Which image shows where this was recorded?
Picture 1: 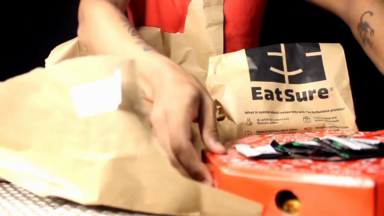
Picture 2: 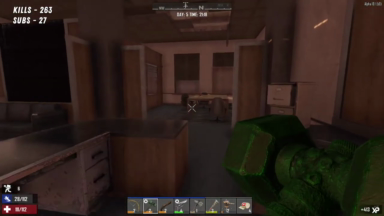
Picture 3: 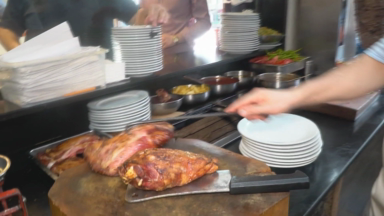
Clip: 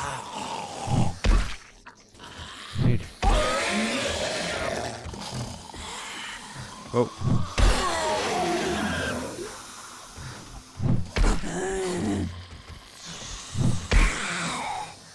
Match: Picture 2